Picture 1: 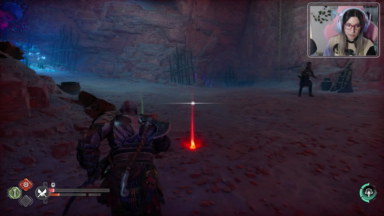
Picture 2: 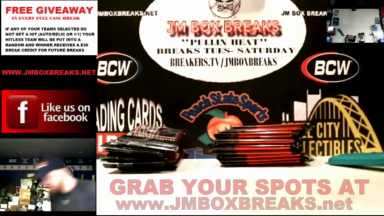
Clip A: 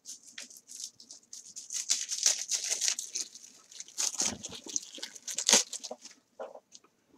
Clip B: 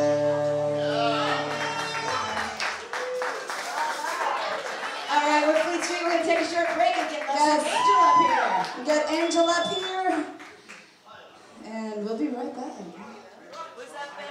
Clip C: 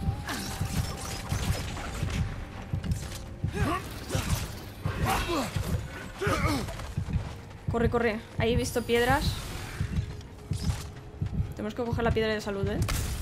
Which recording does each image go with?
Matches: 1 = C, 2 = A